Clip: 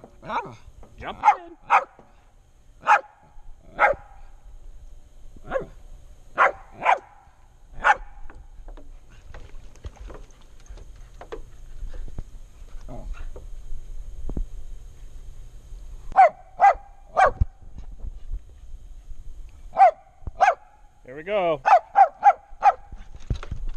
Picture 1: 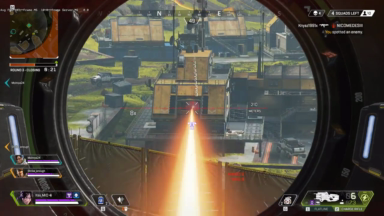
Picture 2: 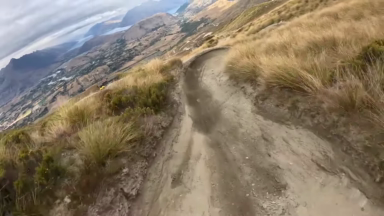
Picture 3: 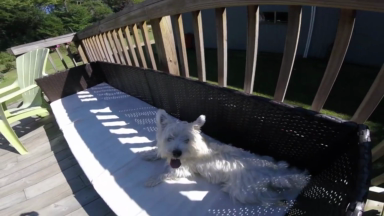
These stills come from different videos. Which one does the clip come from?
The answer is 3